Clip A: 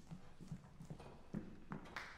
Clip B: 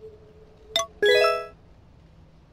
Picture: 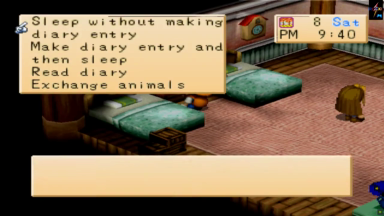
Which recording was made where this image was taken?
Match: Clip B